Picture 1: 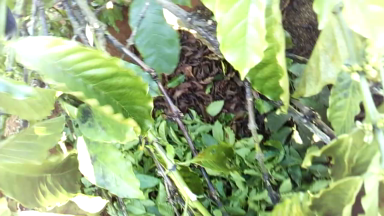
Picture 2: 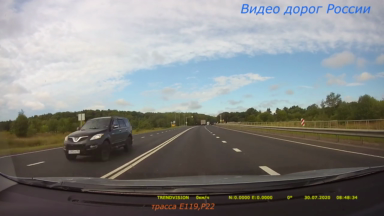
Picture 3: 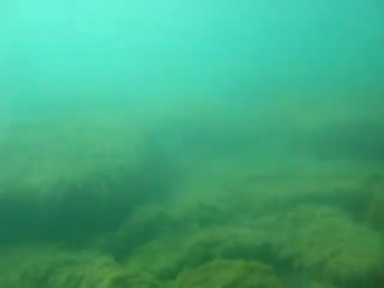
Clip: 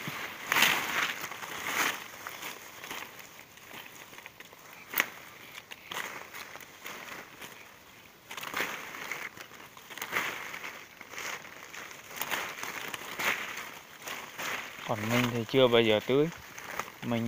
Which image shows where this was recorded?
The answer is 1